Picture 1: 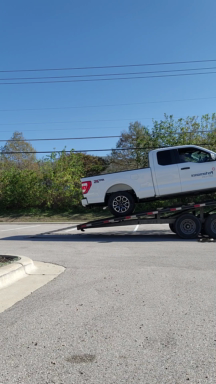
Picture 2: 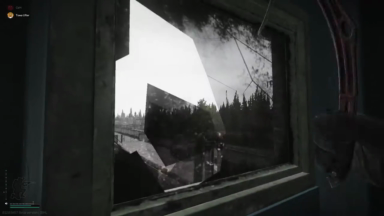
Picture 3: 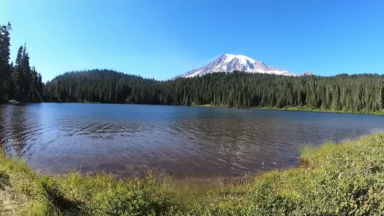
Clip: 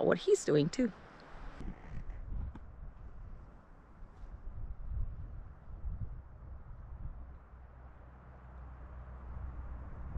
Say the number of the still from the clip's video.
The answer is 3